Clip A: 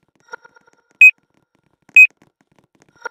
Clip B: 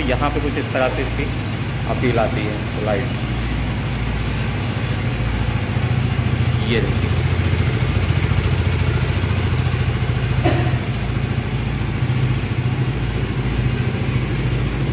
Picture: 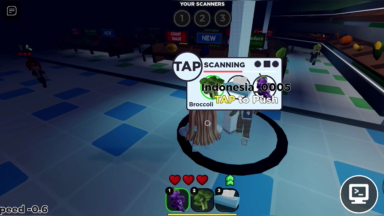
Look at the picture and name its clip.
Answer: A